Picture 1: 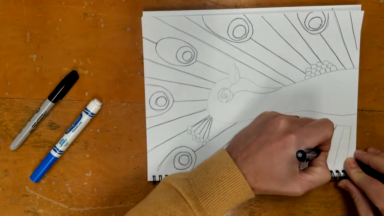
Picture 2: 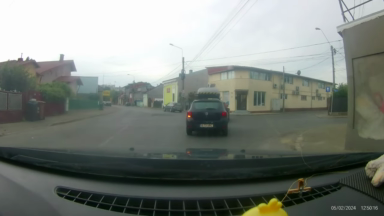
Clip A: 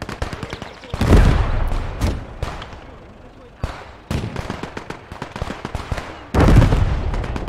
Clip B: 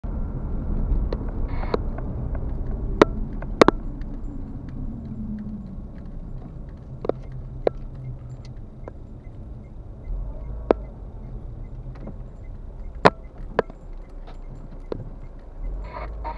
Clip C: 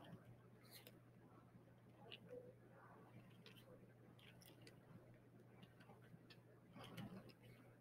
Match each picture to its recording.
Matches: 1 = C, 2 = B